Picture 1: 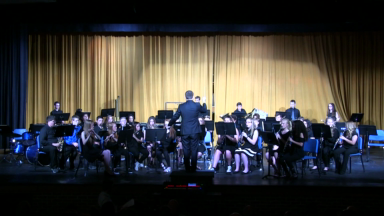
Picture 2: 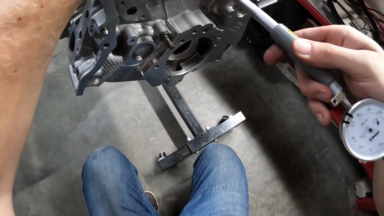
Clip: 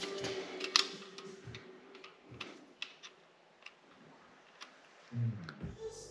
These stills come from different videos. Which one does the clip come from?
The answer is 2